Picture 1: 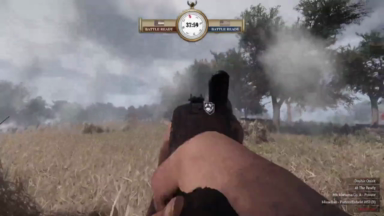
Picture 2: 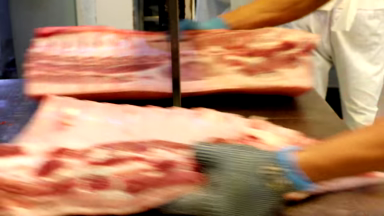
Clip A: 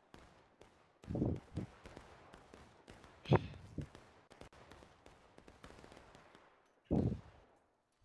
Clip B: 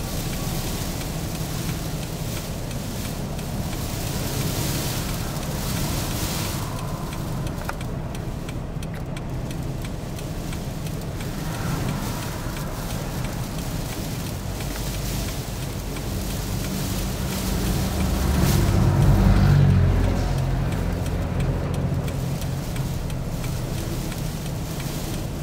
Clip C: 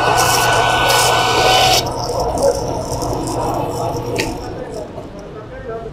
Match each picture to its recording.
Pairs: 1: A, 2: C